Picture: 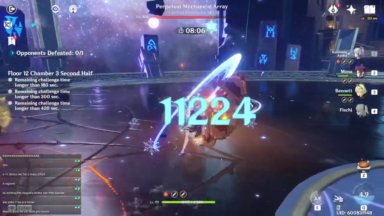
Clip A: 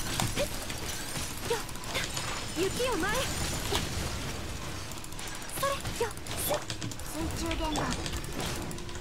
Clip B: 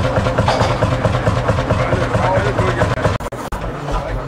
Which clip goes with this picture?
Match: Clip A